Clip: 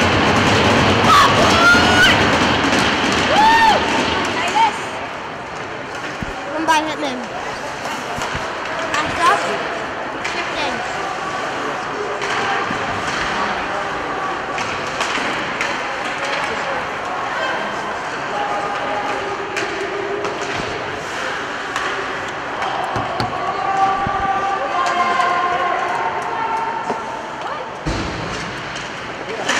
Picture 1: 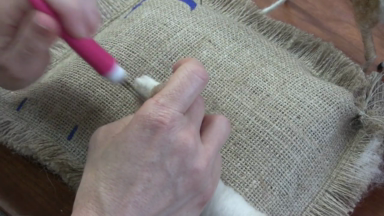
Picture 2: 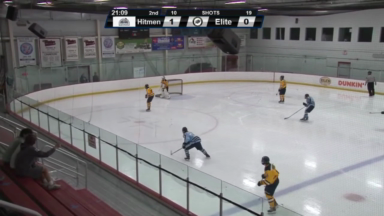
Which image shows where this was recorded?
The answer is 2